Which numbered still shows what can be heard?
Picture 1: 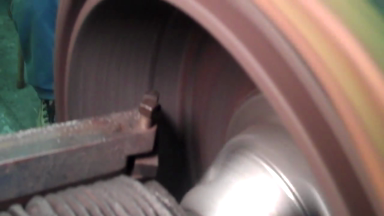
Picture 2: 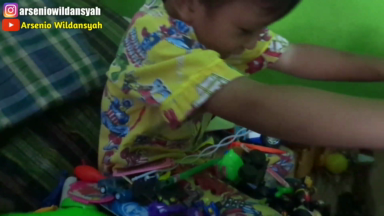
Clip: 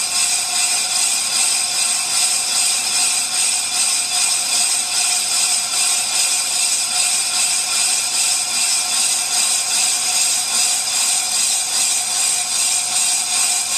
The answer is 1